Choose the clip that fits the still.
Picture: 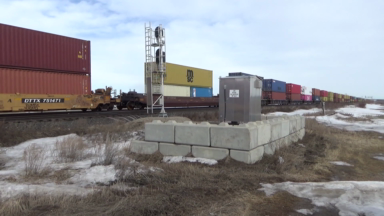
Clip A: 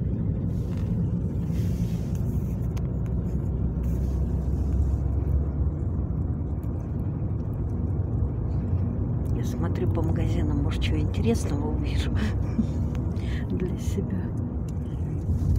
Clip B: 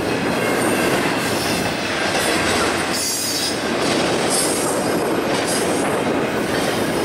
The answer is B